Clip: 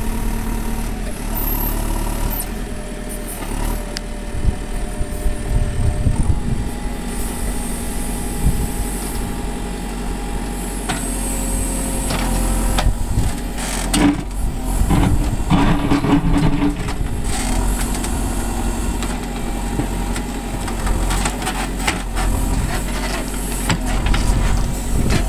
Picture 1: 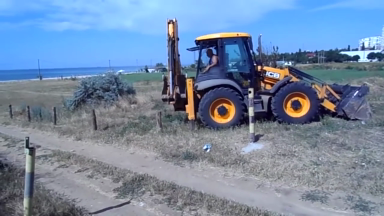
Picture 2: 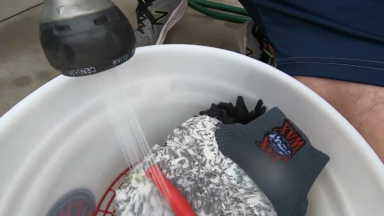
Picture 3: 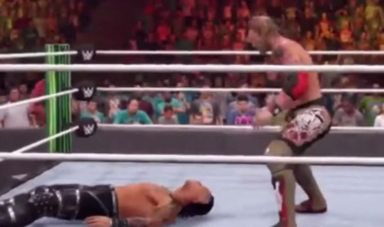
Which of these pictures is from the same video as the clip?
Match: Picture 1